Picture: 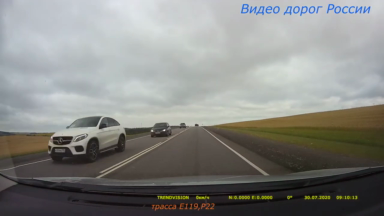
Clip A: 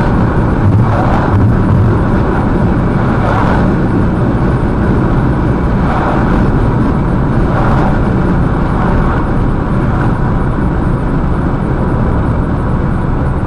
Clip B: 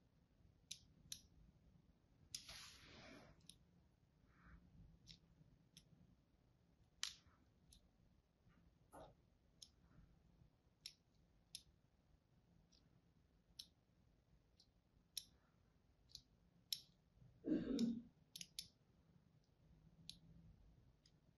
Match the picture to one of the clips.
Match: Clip A